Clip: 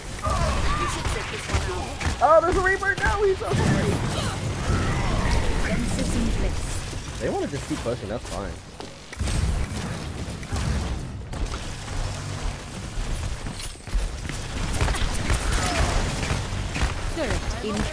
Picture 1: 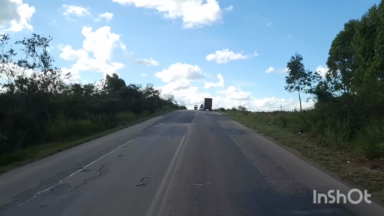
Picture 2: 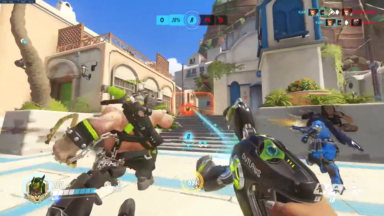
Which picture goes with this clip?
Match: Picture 2